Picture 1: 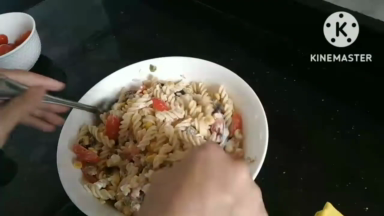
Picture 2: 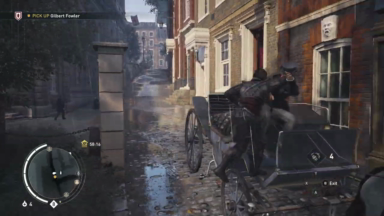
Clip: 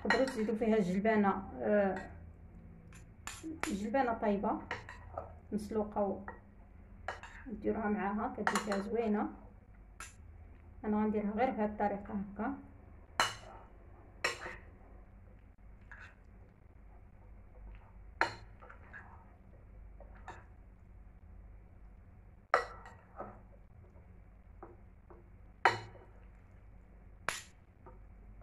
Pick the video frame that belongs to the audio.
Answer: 1